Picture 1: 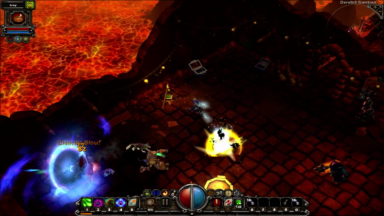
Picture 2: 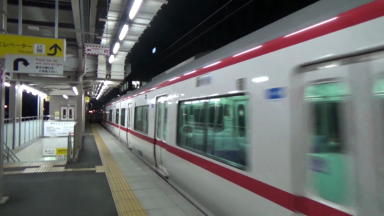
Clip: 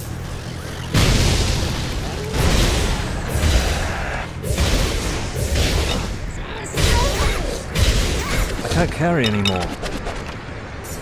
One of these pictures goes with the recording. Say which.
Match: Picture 1